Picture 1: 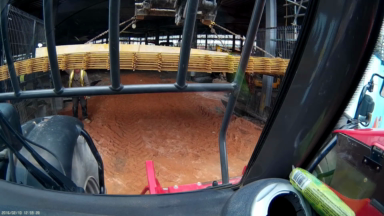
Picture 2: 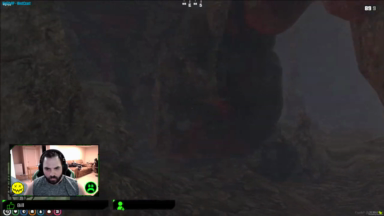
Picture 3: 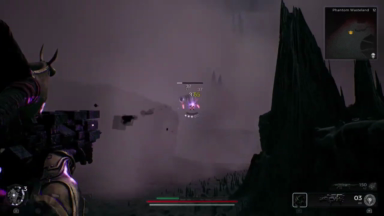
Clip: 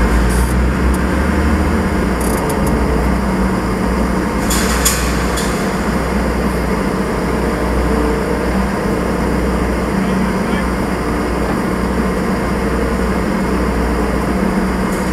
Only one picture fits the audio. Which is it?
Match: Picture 1